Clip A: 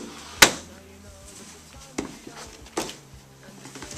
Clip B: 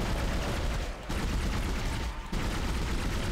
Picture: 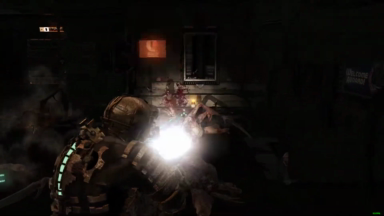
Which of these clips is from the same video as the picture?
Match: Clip B